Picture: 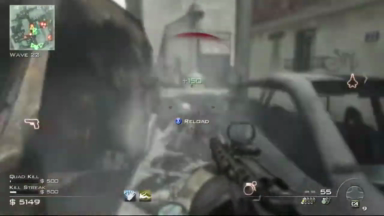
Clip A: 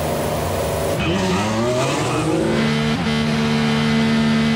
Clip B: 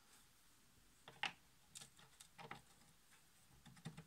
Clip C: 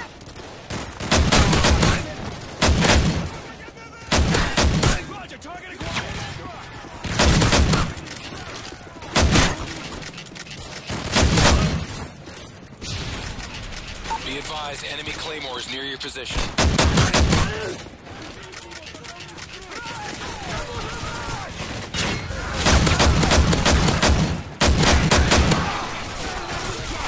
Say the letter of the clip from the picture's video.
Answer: C